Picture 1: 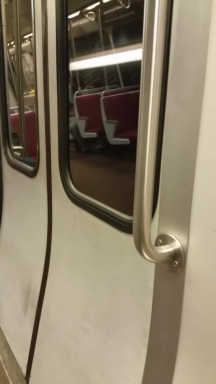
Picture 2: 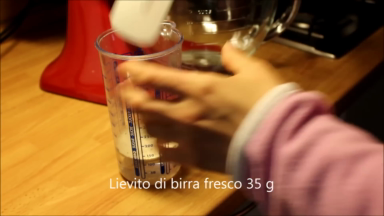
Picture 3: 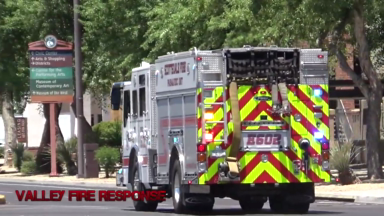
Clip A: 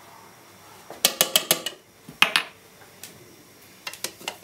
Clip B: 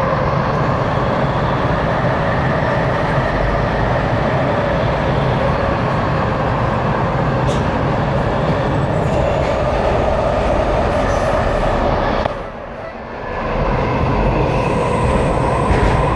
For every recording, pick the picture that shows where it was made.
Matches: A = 2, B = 1